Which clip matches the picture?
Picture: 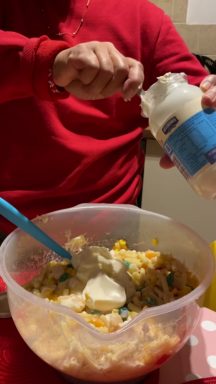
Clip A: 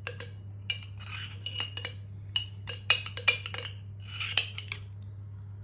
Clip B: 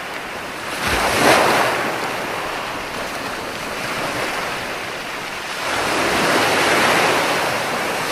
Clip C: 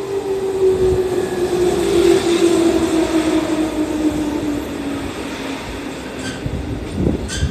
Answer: A